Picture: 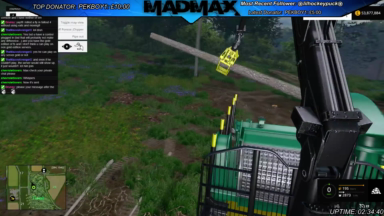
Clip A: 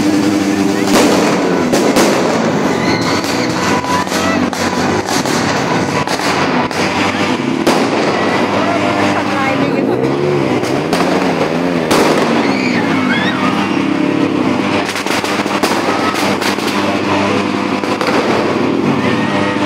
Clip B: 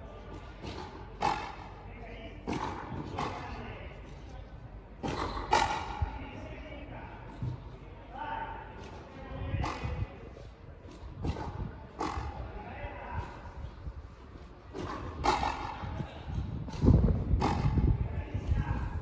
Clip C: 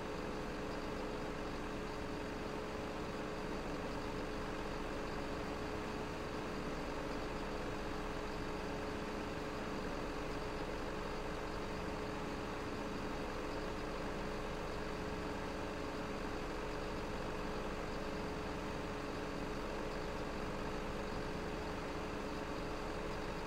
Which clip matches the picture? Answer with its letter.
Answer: C